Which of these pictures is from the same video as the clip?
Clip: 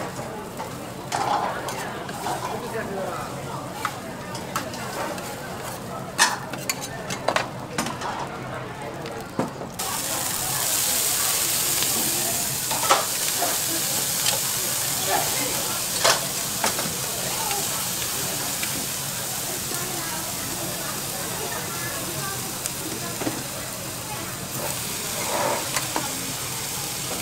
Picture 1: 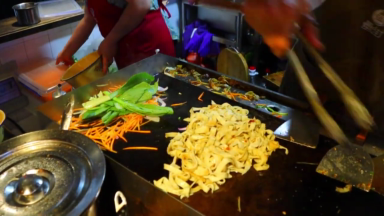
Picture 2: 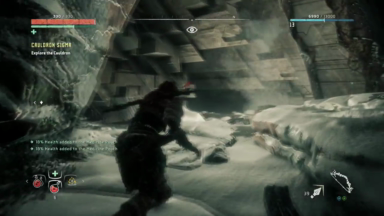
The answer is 1